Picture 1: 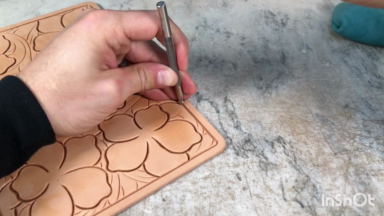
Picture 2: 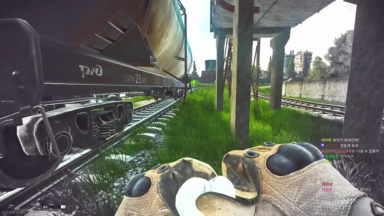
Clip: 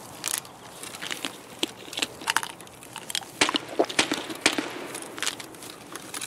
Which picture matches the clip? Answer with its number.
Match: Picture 2